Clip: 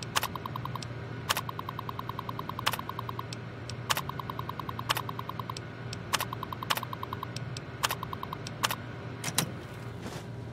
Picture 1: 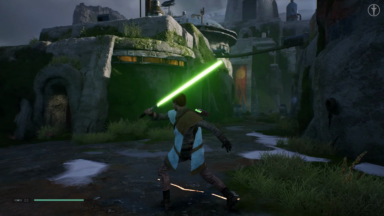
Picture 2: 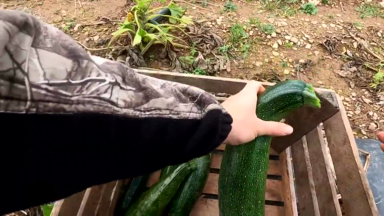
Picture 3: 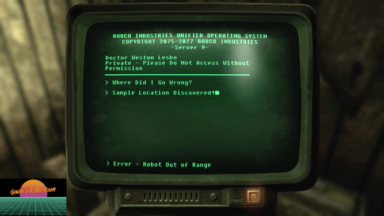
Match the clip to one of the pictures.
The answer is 3